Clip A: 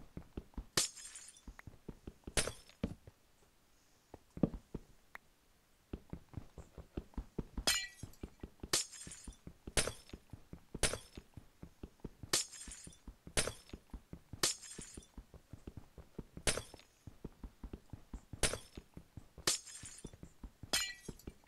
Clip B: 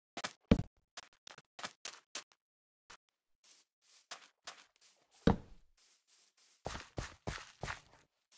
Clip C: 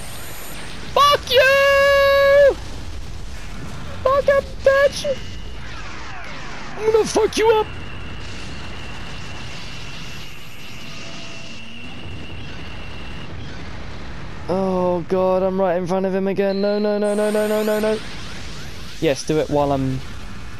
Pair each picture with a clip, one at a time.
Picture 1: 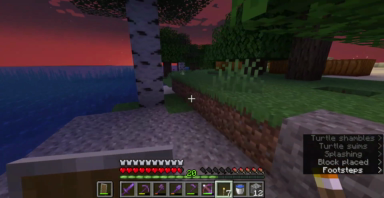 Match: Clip B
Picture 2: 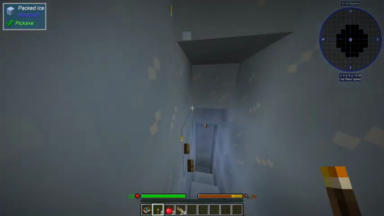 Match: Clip A